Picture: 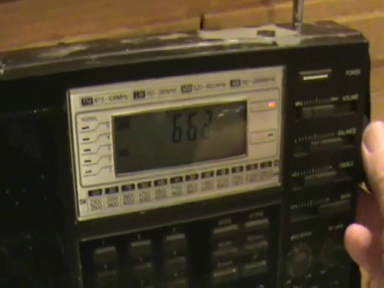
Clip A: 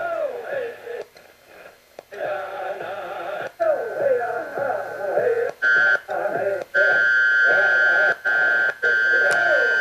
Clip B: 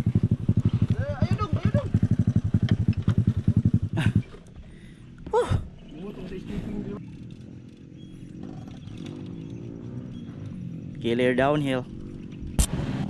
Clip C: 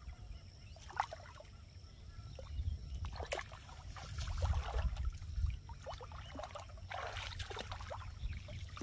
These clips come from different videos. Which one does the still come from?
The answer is A